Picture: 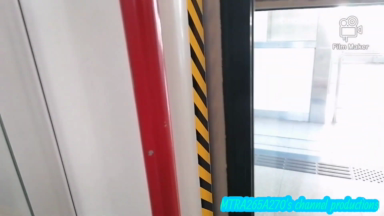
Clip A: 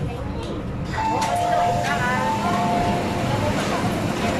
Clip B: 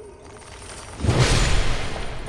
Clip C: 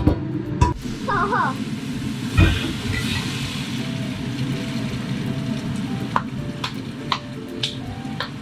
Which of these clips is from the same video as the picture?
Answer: A